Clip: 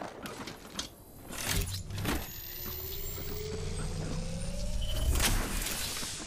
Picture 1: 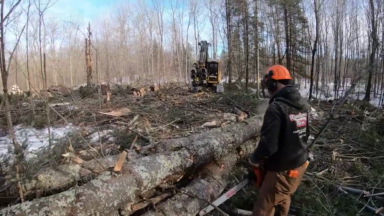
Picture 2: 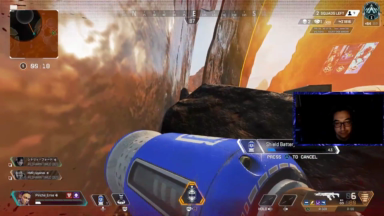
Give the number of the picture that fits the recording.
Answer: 2